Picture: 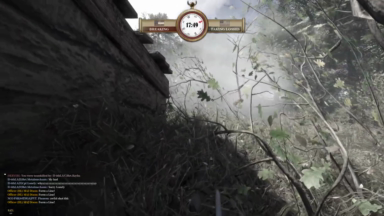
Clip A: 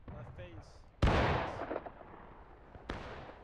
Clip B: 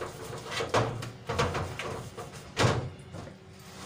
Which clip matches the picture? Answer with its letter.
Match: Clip A